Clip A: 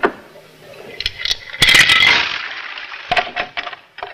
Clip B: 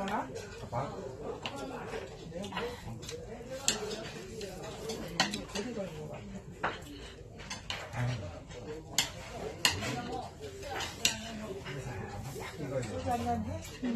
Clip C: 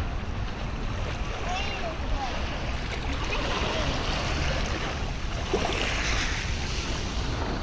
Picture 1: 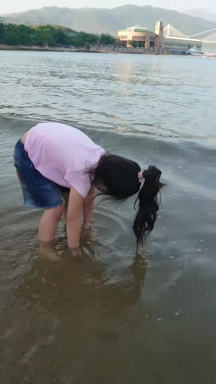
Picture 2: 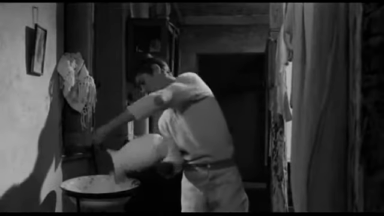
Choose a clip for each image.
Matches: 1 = C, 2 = A